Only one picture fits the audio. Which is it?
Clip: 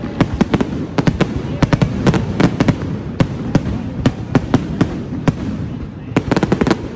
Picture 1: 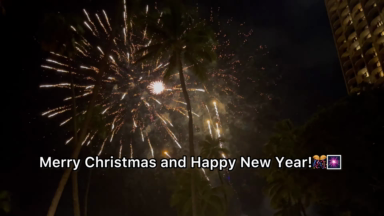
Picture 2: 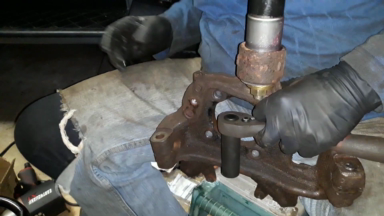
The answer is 1